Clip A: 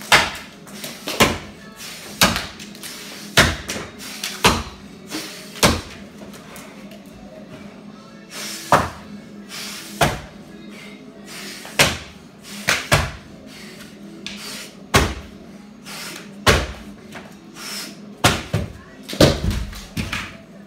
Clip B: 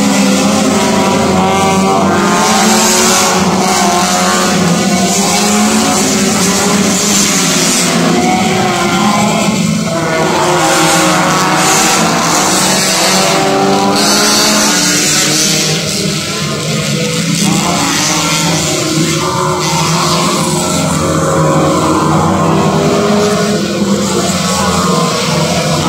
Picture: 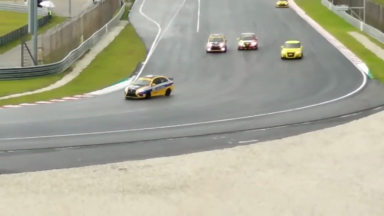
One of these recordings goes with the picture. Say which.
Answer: B